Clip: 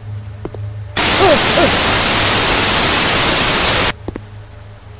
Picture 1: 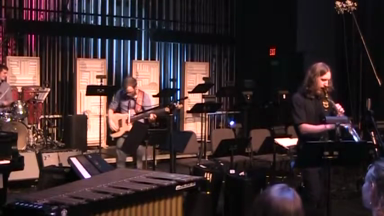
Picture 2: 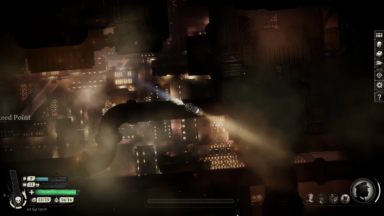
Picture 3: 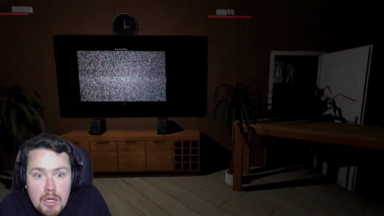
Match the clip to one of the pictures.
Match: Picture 3